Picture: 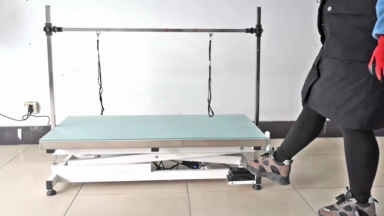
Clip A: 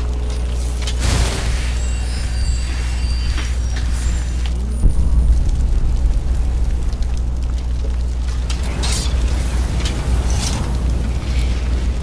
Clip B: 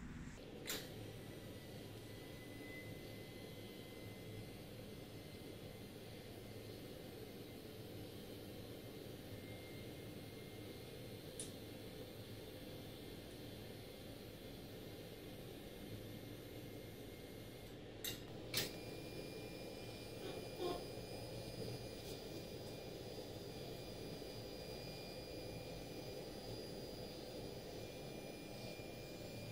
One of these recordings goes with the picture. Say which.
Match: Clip B